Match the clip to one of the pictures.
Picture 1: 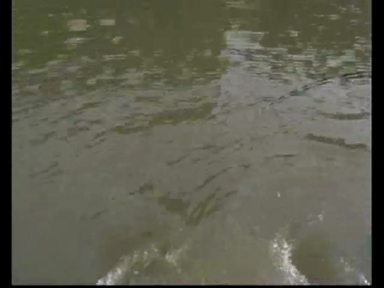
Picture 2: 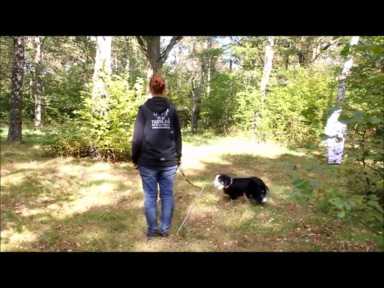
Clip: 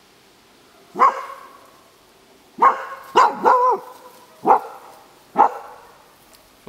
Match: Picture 2